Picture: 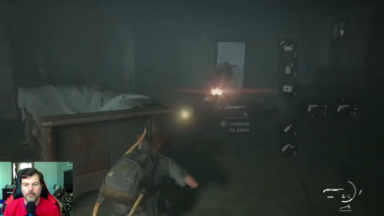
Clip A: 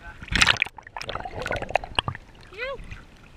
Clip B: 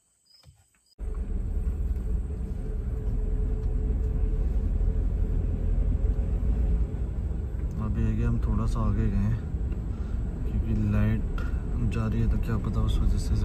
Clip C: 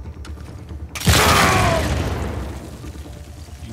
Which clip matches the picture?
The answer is C